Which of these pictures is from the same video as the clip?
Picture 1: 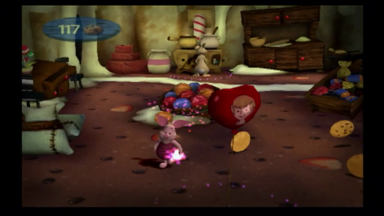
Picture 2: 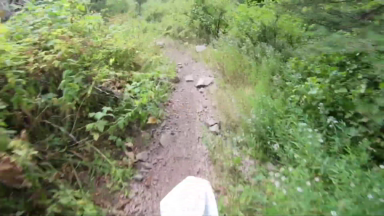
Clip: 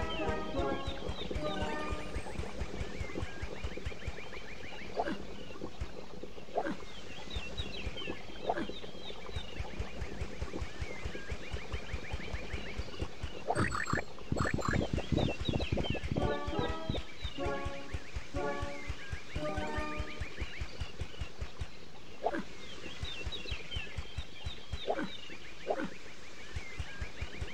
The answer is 1